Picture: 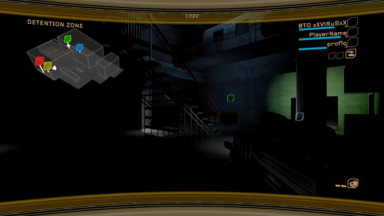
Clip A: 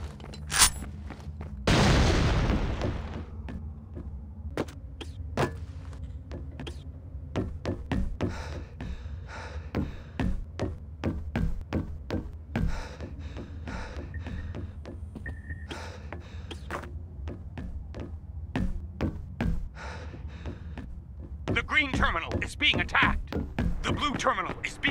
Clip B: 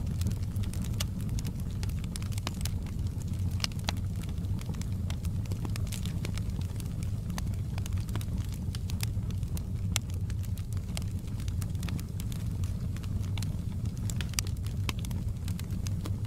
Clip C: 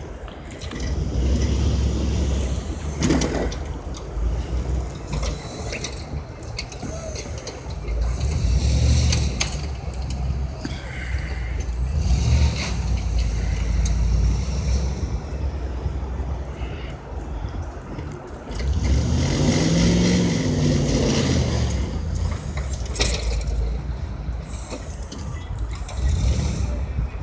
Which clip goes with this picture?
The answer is A